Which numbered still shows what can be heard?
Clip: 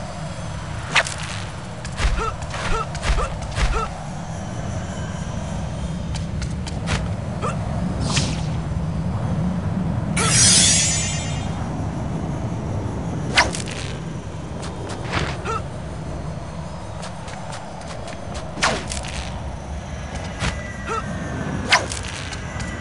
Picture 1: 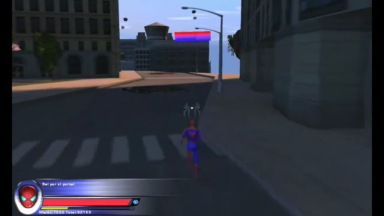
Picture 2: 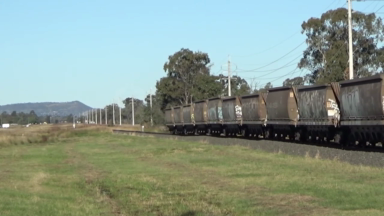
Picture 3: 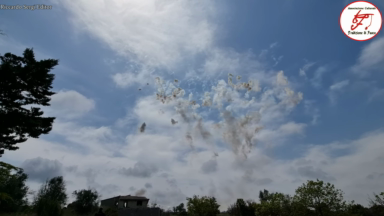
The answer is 1